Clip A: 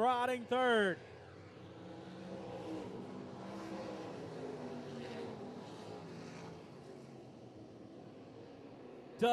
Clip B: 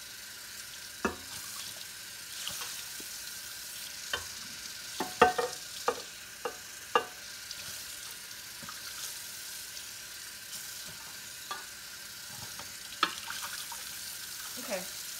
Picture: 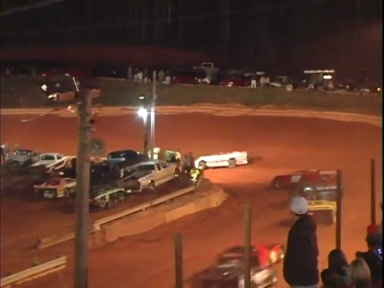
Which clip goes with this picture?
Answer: A